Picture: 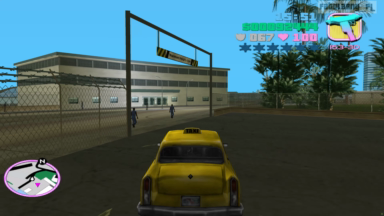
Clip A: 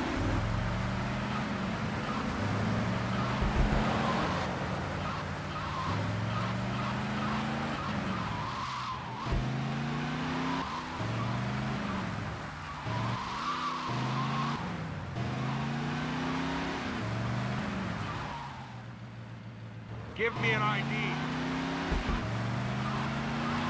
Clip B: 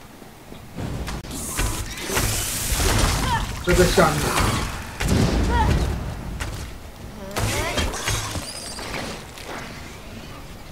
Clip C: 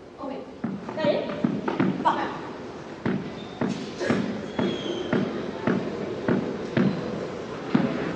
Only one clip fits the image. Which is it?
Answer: A